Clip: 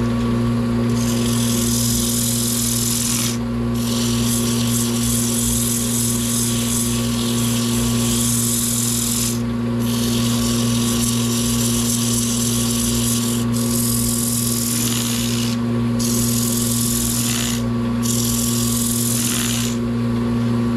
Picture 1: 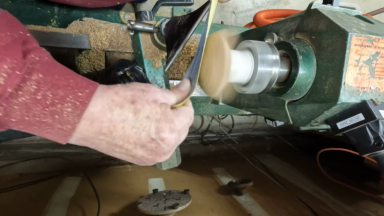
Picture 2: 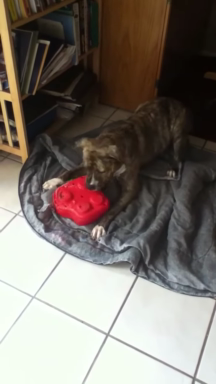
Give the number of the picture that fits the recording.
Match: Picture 1